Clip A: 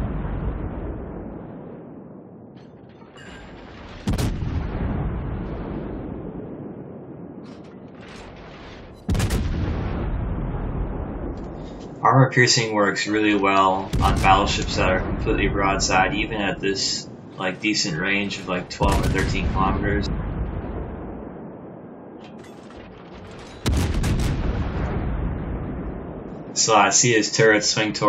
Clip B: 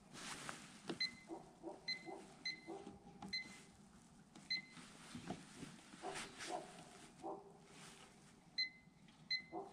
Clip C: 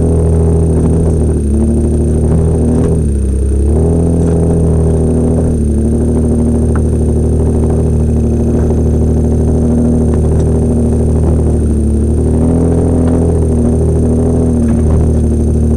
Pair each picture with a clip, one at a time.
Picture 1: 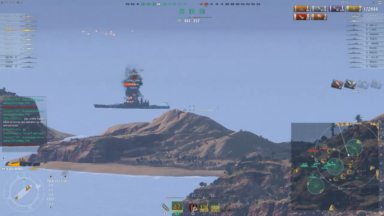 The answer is A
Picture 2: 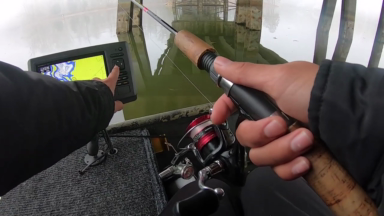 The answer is B